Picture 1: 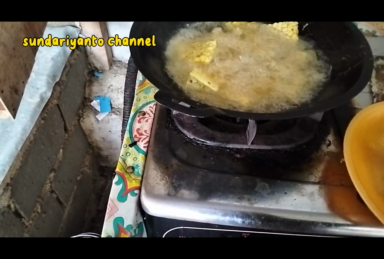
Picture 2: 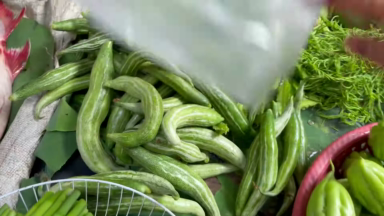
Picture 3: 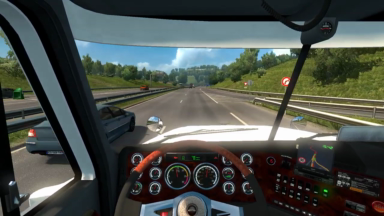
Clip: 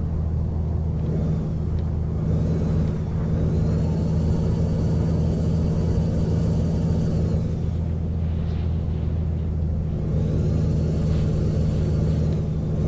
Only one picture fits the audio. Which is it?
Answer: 3